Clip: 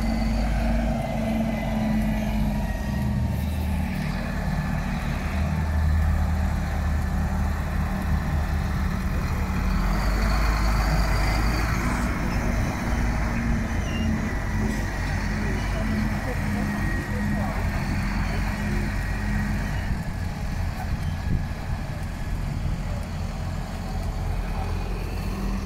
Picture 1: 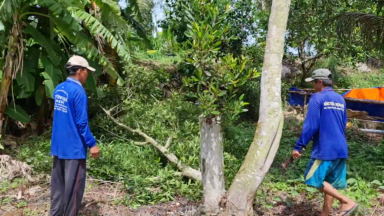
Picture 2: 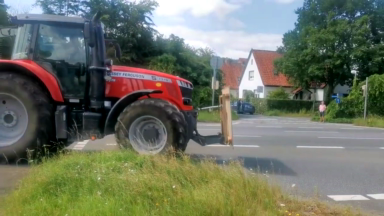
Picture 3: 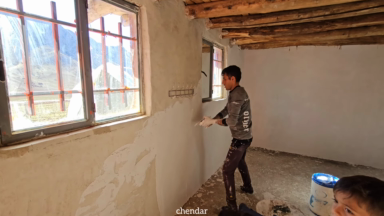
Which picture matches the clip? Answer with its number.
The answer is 2